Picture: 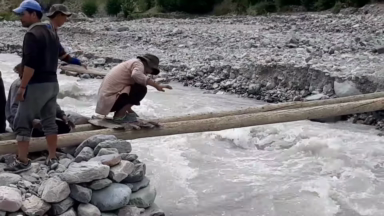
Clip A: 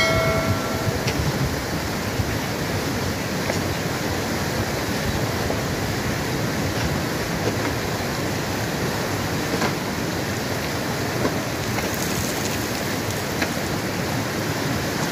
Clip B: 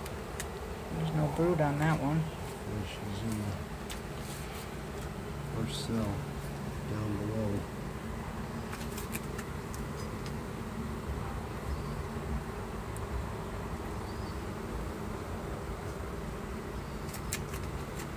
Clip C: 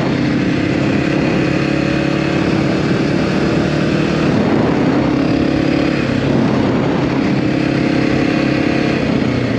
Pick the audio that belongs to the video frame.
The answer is A